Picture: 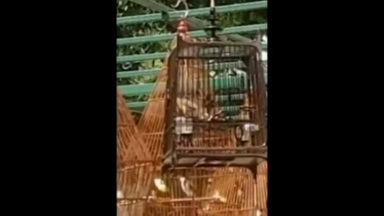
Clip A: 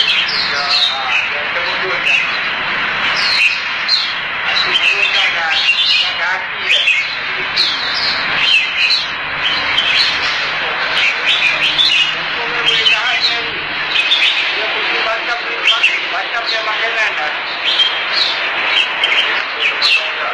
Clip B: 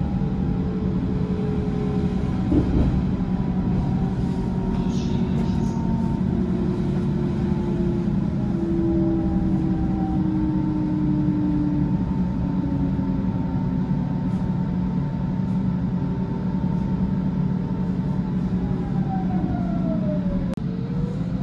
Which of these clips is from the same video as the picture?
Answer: A